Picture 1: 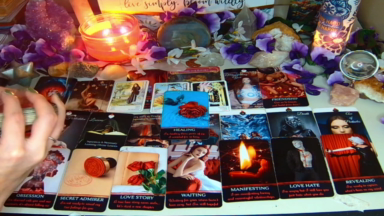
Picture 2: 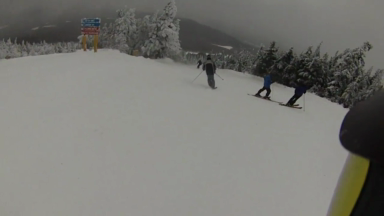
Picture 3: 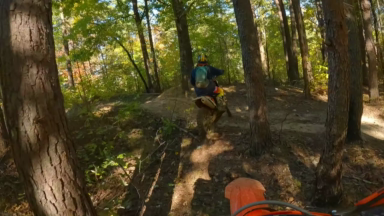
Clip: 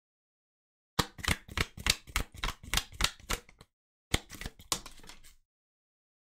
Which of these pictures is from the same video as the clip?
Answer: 1